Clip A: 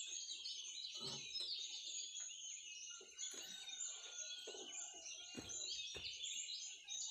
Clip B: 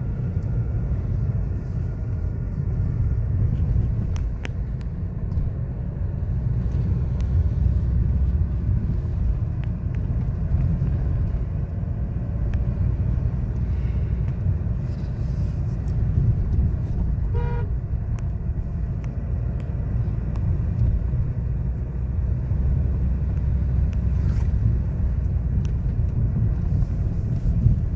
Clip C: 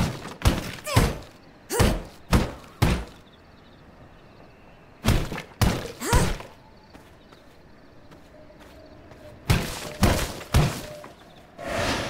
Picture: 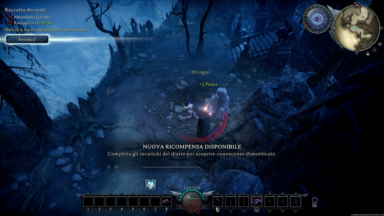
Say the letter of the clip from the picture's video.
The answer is C